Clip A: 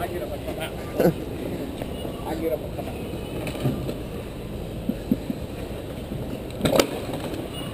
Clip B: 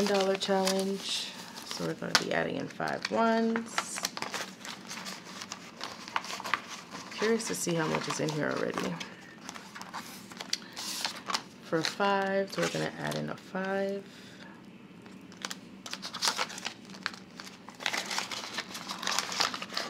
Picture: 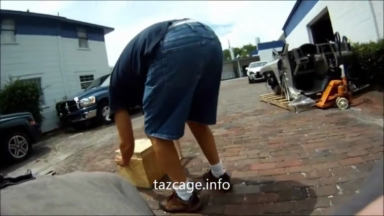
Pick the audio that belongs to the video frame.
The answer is A